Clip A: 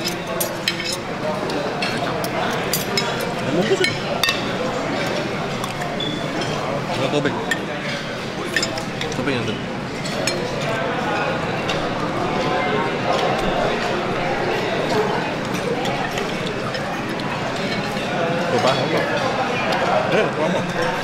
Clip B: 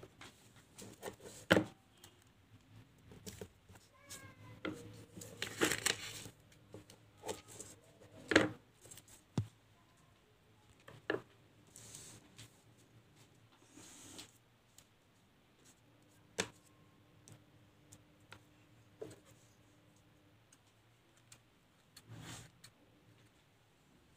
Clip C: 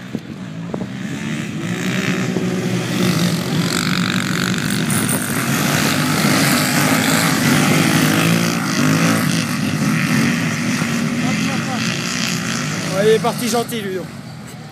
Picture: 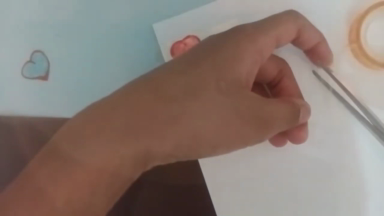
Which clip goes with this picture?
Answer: B